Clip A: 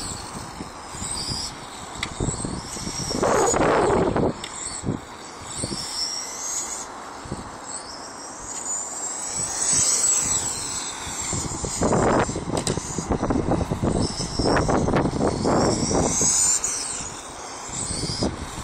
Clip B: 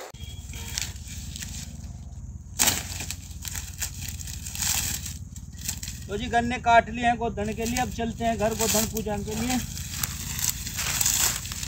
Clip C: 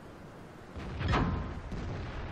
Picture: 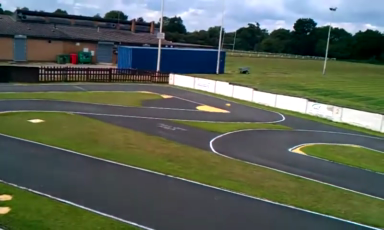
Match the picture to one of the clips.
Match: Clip A